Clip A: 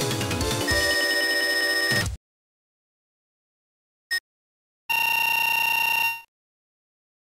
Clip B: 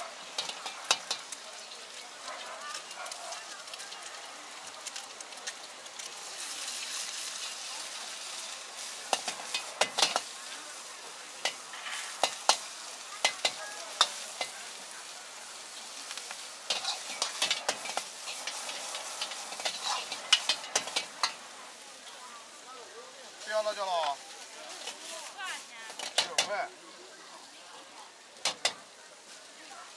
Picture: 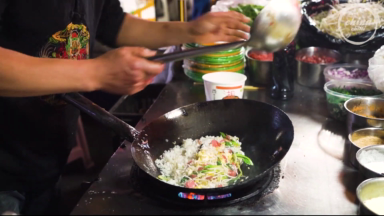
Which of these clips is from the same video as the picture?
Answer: B